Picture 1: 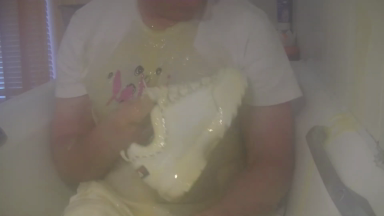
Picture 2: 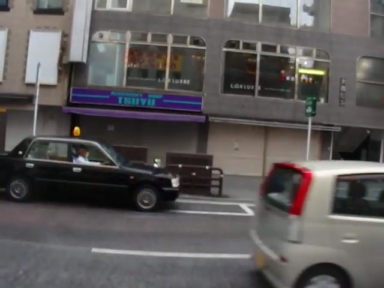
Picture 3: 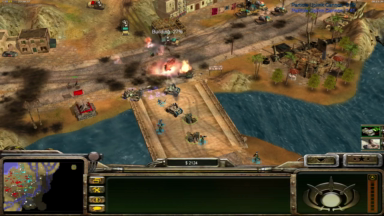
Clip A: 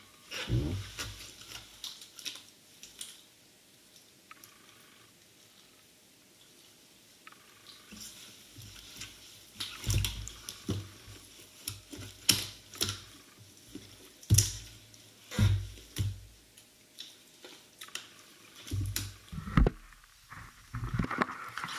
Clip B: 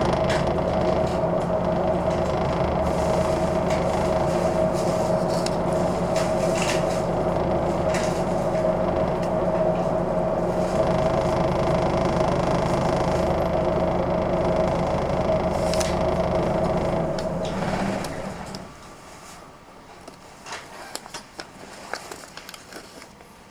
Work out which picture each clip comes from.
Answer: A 1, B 2